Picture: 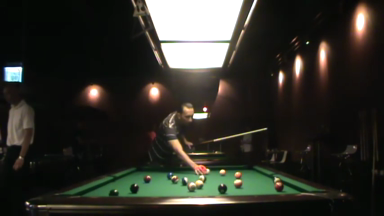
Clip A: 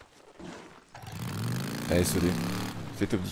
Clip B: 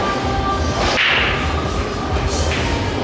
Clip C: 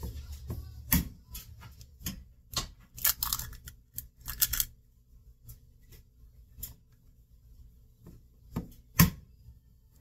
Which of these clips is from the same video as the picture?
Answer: B